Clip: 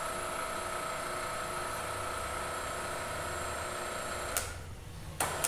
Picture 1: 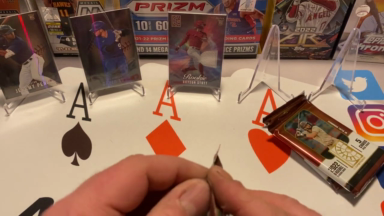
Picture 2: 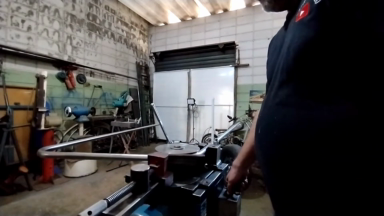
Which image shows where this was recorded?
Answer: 2